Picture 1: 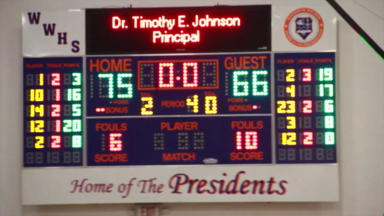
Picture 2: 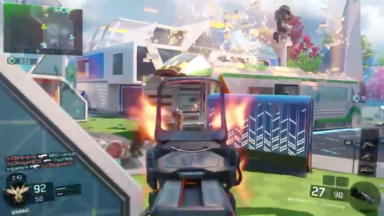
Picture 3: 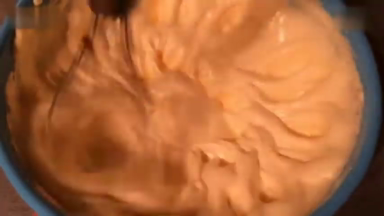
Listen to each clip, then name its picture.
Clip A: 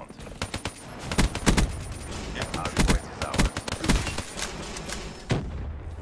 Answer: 2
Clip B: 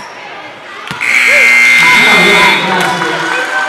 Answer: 1